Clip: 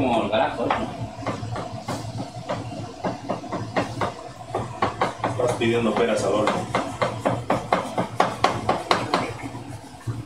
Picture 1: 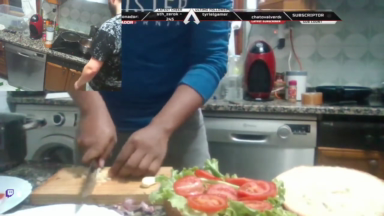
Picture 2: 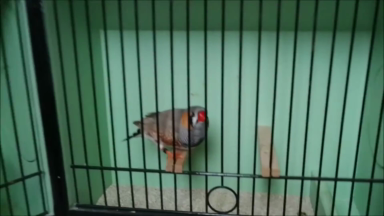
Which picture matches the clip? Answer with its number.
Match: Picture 1